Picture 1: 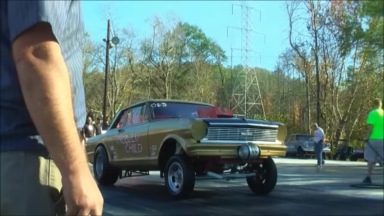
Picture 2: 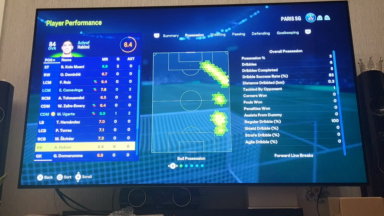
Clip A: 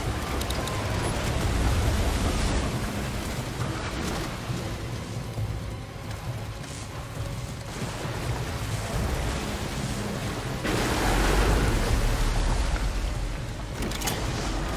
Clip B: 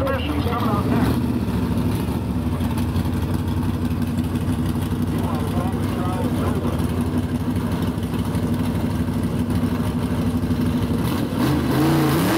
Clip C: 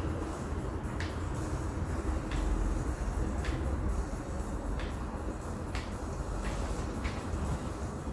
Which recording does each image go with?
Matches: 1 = B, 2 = C